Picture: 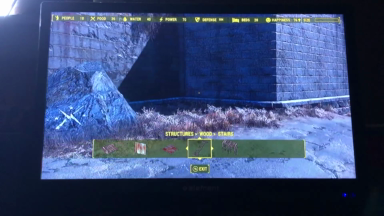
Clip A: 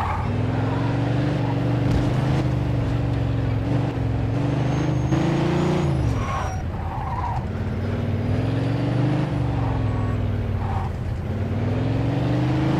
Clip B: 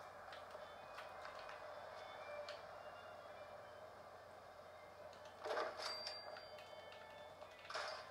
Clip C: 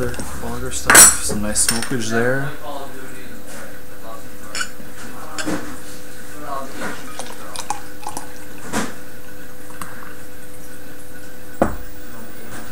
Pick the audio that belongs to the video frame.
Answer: B